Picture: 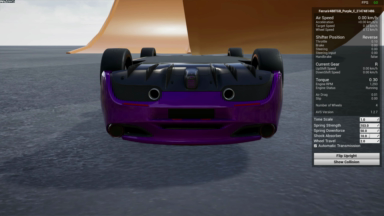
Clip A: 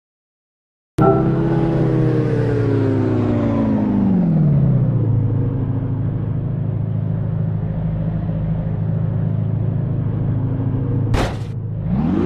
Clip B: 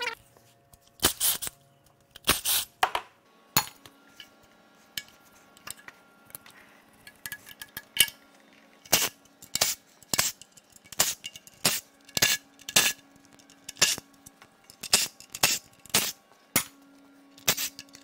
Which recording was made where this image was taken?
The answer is A